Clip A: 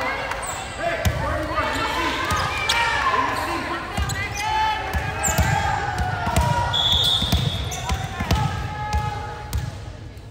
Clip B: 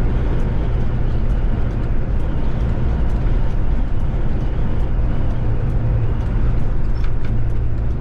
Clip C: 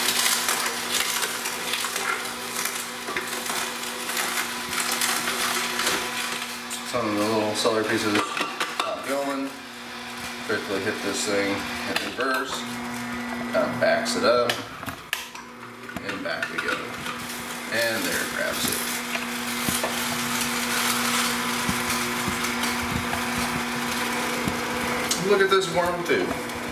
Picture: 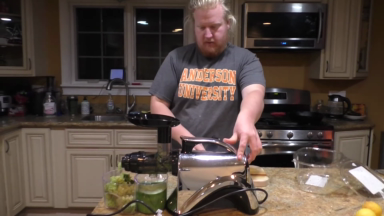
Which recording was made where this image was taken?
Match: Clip C